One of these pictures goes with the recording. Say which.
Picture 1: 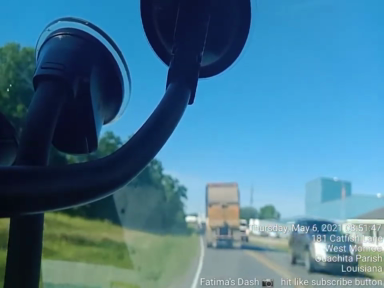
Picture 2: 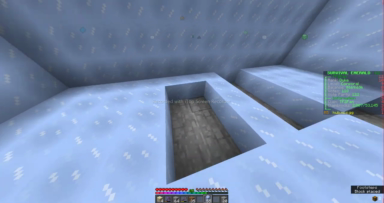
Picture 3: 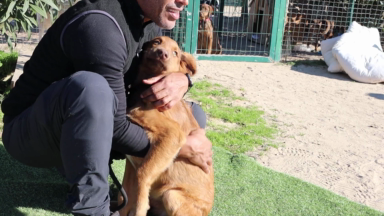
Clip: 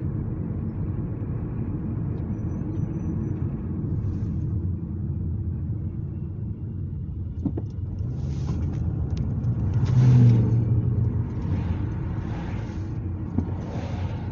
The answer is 1